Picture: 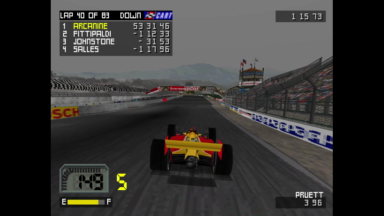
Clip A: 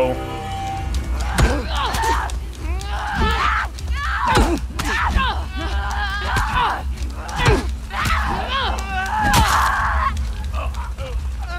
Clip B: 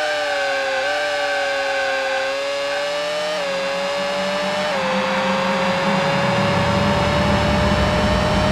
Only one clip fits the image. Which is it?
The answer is B